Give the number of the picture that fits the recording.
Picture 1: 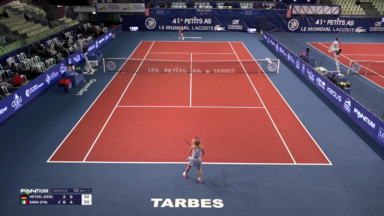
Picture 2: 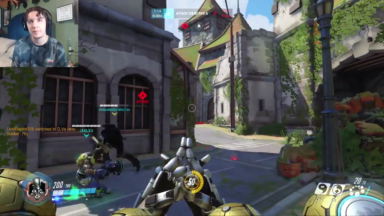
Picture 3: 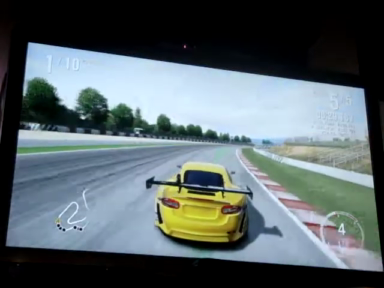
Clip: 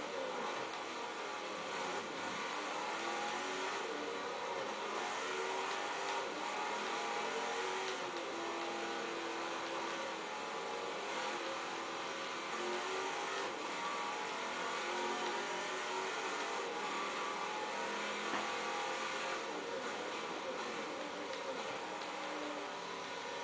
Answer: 3